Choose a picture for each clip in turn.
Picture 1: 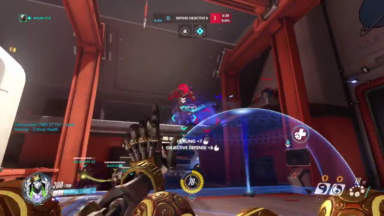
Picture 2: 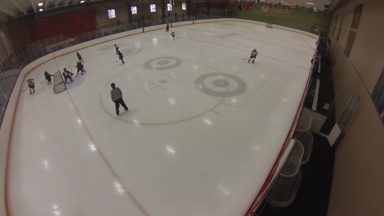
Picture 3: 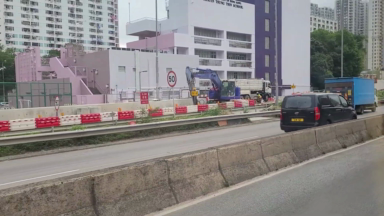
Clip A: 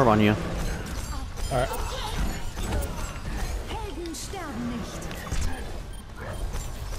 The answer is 1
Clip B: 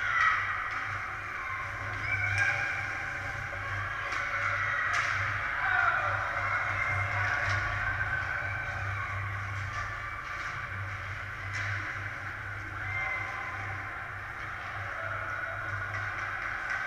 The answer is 2